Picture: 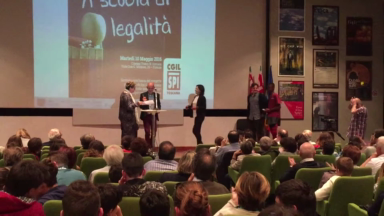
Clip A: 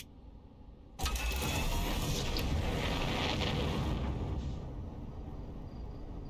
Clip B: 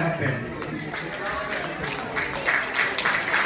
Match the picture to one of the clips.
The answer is B